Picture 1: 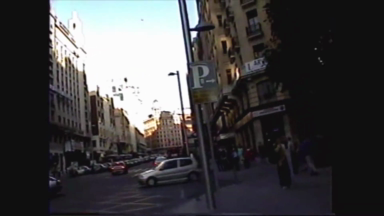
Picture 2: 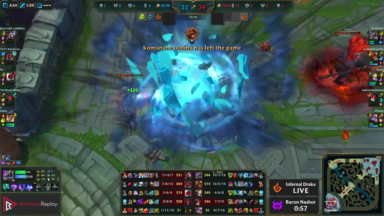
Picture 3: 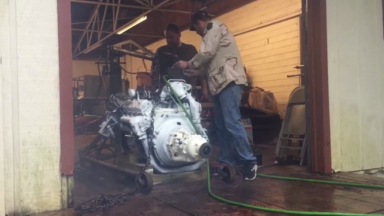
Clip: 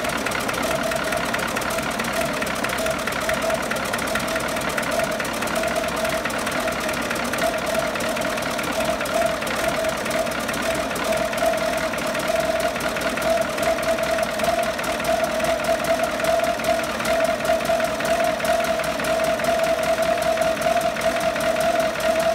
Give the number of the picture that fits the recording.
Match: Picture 3